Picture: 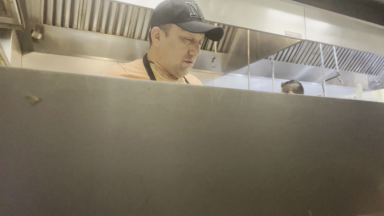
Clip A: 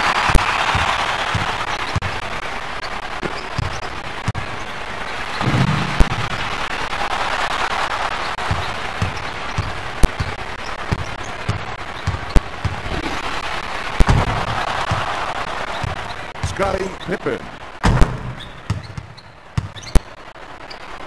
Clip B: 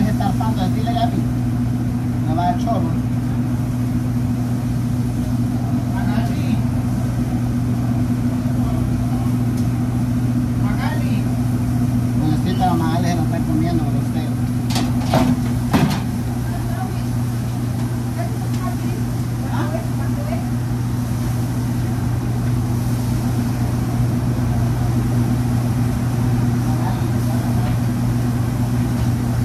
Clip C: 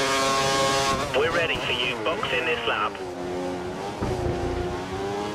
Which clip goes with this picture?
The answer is B